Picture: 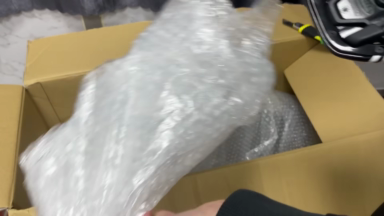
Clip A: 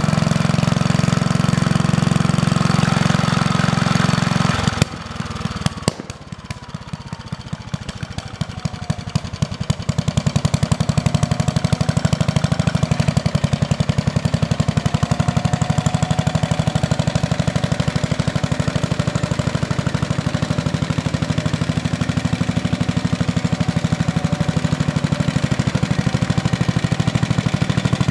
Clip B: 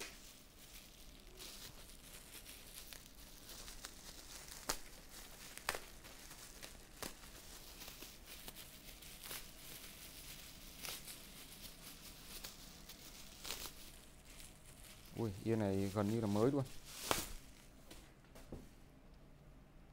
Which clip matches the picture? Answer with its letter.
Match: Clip B